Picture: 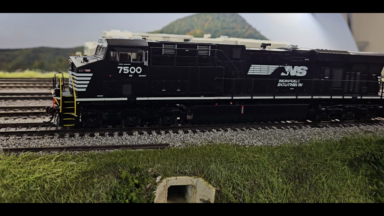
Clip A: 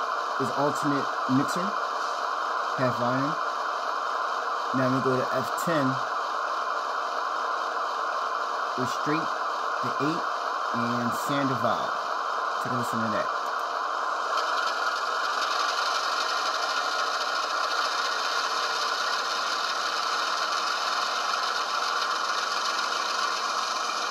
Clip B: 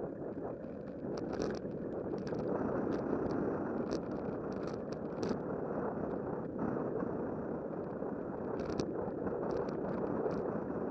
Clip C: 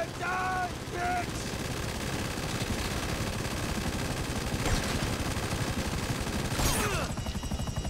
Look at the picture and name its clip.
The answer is A